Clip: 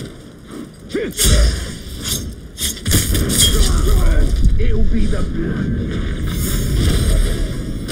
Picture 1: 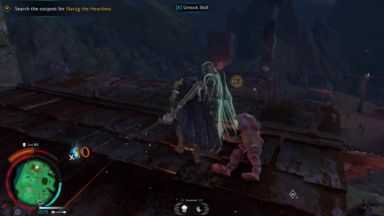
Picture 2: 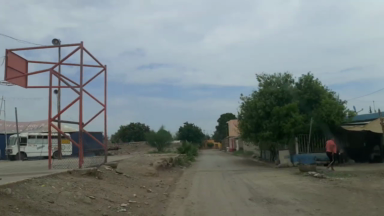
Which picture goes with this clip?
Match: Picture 1